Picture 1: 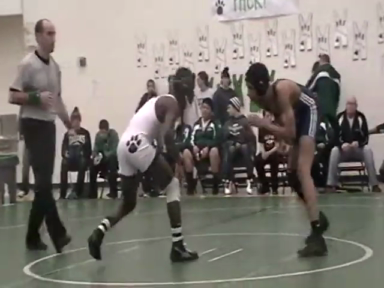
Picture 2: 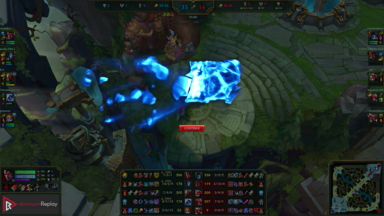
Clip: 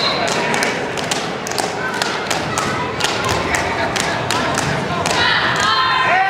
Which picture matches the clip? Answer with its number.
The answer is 1